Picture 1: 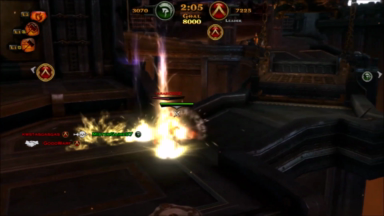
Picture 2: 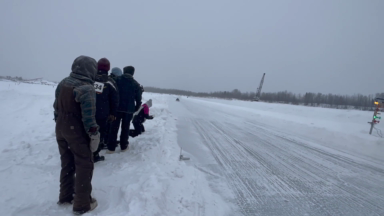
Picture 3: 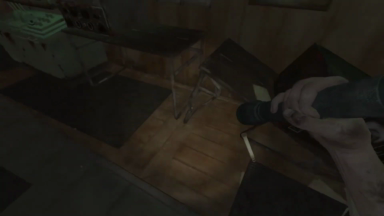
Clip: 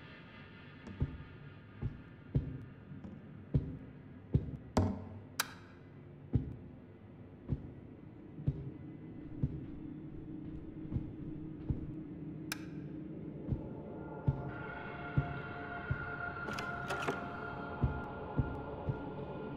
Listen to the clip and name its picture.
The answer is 3